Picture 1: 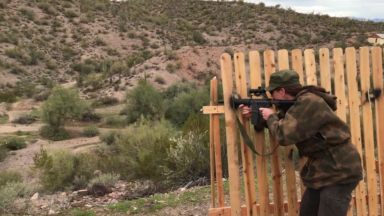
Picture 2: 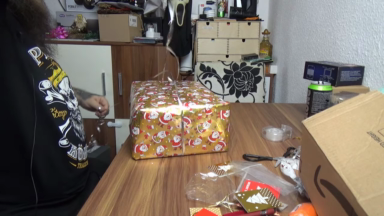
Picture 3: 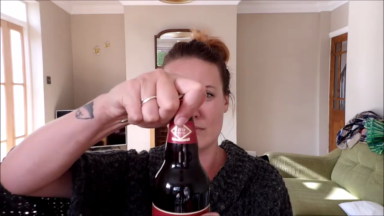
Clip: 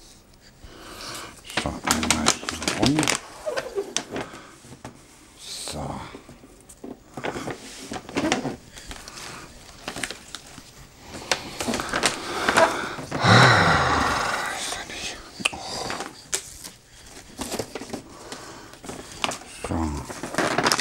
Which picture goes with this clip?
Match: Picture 2